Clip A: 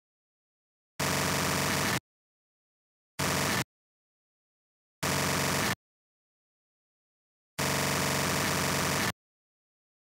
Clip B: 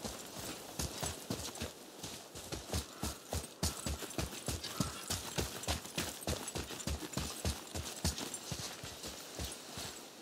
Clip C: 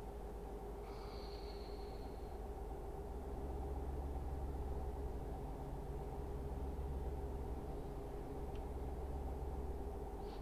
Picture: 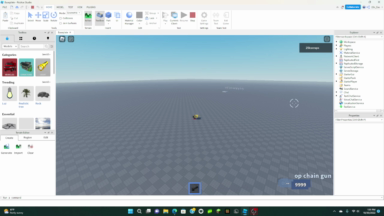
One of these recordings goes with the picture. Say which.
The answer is A